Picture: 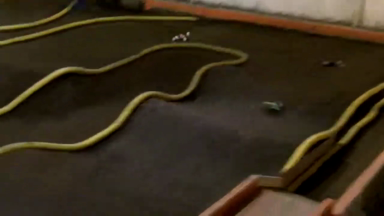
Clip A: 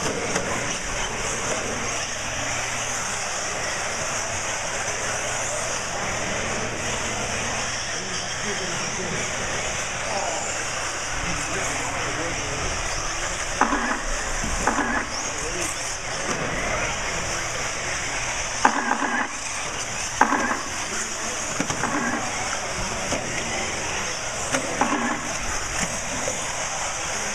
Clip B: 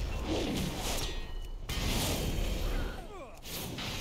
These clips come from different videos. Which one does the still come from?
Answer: A